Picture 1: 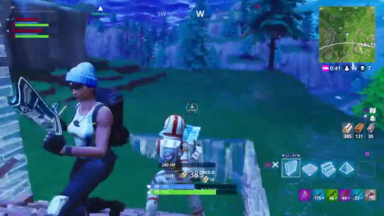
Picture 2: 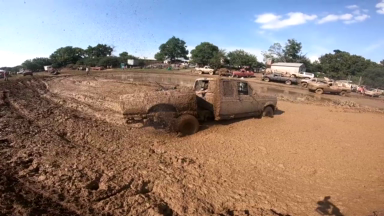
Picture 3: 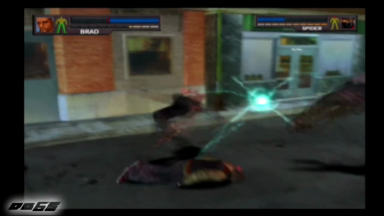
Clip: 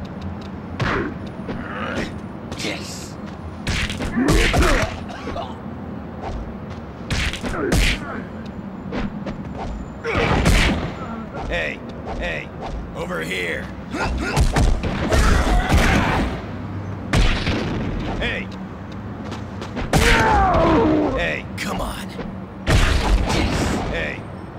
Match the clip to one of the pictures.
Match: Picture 3